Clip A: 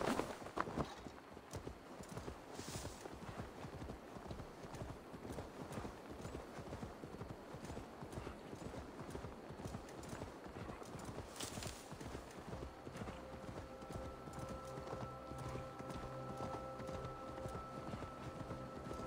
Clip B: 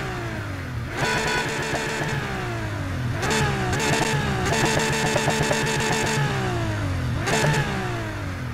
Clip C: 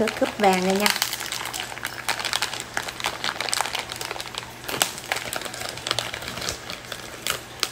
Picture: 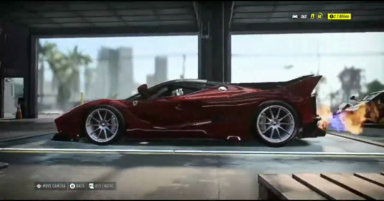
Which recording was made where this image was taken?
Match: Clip B